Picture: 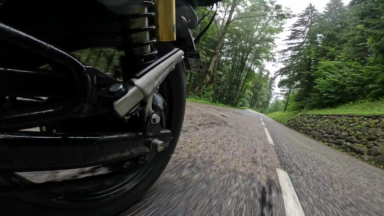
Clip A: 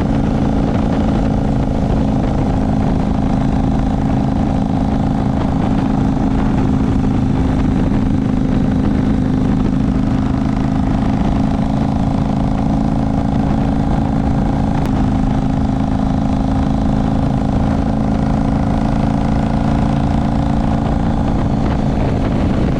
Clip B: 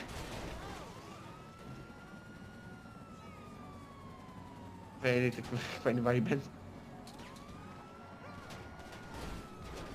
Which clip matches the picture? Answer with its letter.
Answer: A